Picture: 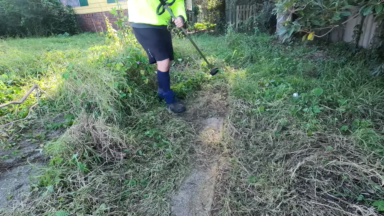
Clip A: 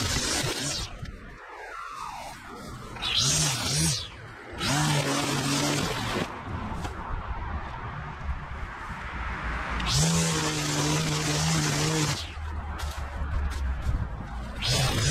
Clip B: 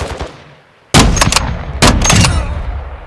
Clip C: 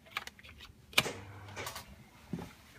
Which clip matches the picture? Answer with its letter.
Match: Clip A